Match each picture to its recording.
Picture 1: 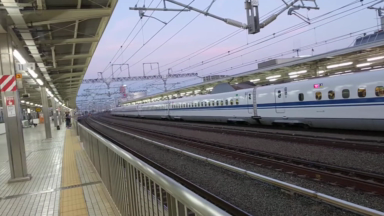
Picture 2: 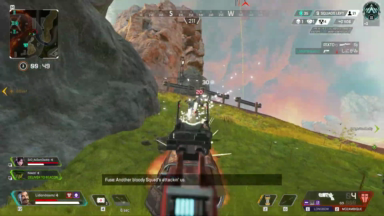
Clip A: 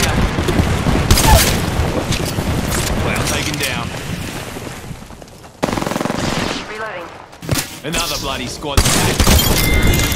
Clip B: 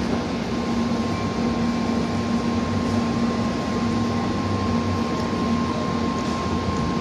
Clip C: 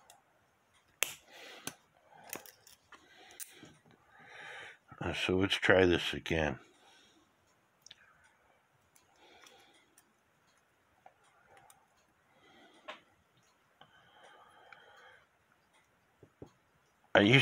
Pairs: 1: B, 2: A